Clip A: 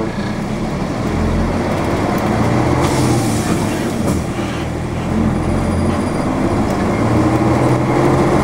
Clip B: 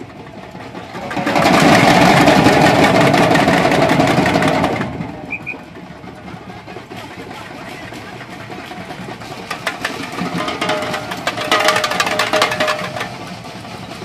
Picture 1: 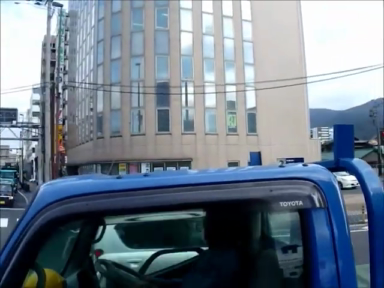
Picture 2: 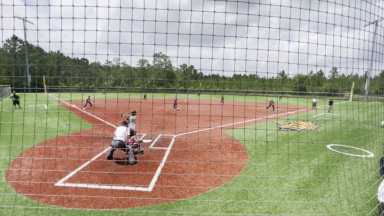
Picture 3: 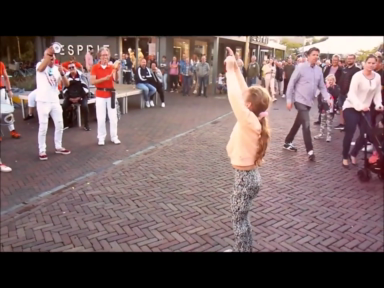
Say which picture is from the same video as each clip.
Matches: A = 1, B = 3